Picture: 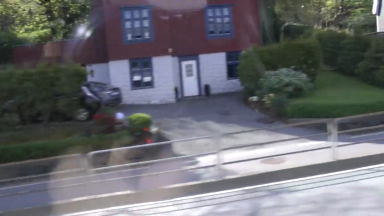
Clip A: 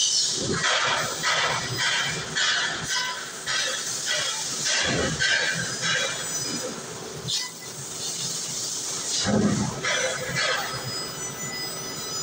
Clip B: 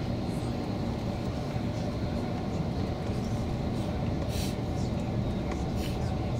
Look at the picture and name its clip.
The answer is B